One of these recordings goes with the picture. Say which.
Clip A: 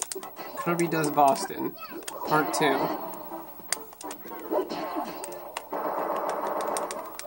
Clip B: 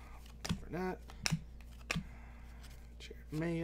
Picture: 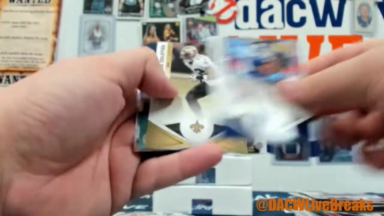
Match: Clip B